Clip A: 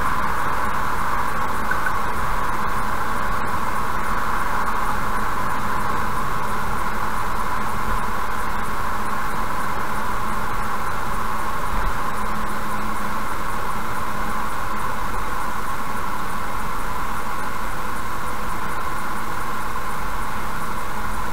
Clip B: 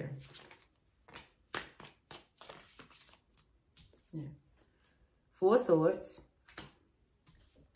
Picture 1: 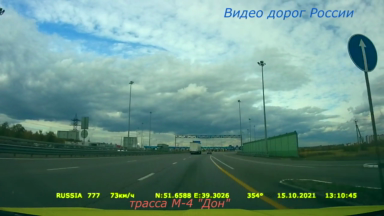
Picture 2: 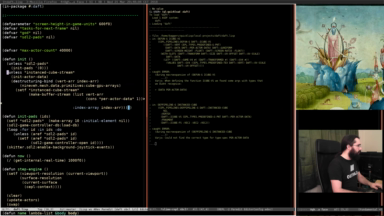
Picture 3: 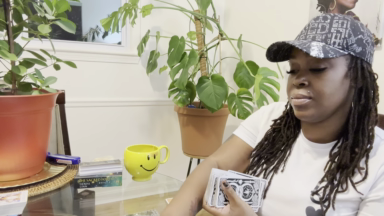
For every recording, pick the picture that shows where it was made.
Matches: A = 1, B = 3